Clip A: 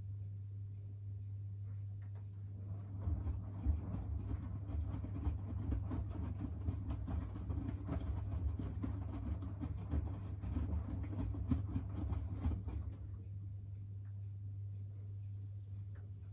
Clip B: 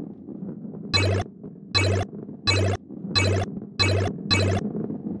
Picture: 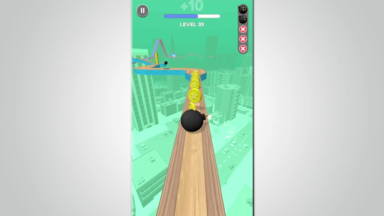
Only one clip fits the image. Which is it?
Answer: B